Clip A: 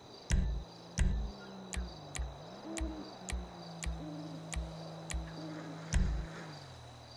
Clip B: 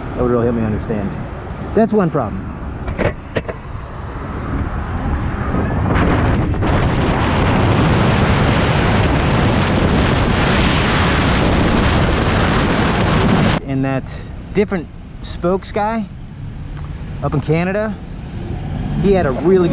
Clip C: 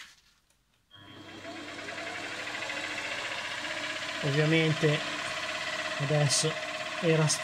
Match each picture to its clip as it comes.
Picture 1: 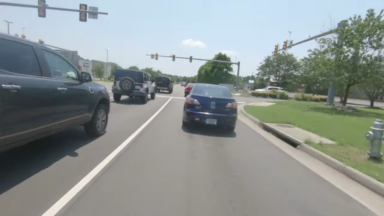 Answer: B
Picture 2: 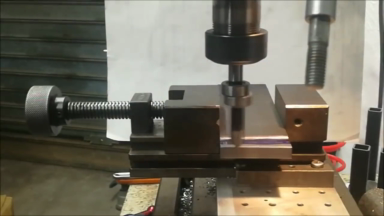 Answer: C